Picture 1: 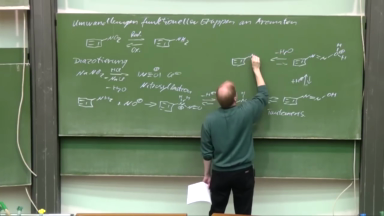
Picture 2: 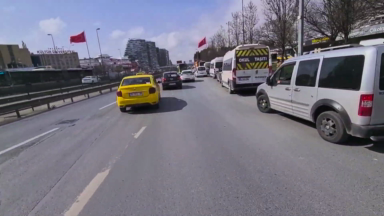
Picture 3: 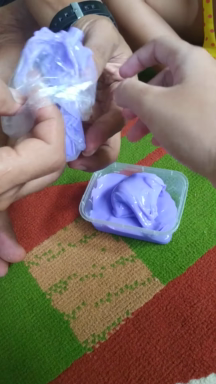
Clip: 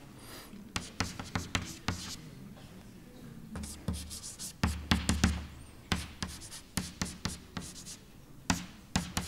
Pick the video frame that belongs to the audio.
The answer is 1